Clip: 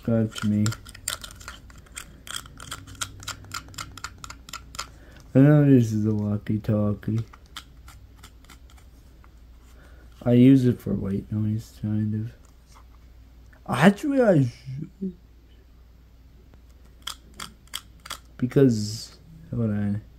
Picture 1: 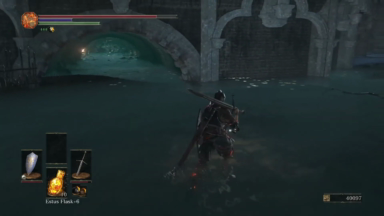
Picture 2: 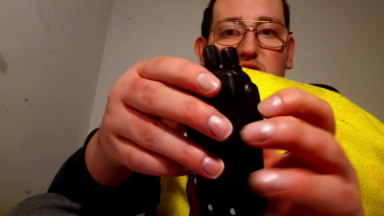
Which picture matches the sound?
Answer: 2